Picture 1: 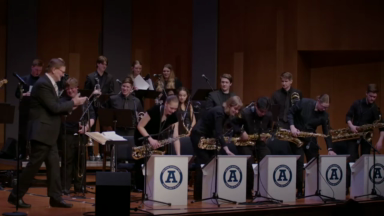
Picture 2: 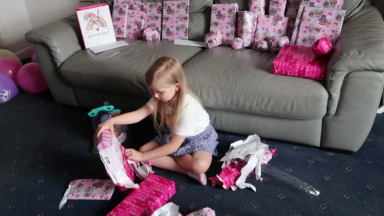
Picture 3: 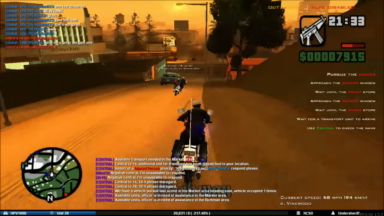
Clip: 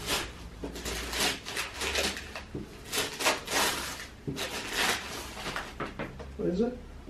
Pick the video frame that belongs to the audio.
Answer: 2